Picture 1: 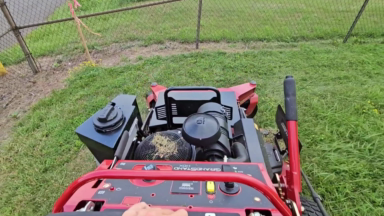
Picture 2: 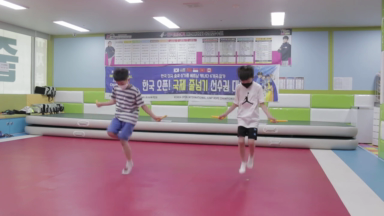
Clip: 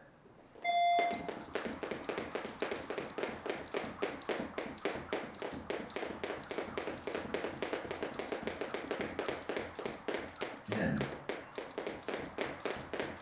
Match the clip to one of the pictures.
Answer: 2